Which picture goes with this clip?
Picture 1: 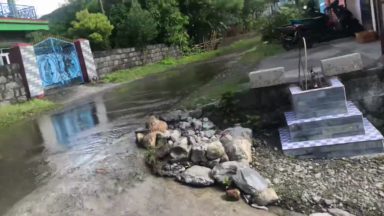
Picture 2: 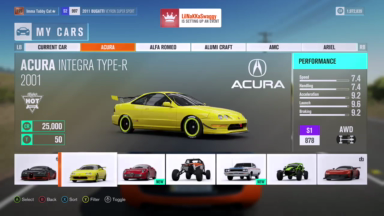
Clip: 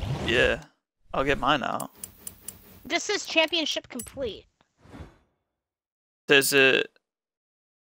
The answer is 2